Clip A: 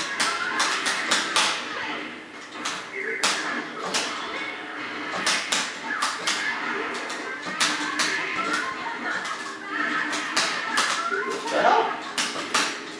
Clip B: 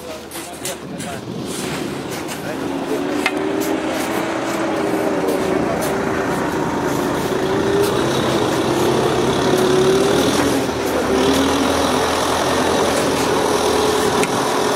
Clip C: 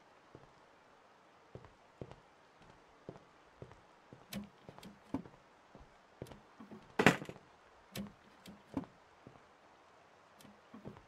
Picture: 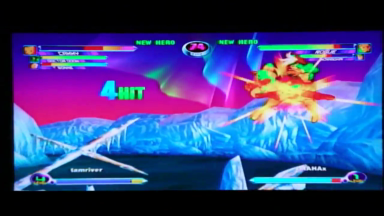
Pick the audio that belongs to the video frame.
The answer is A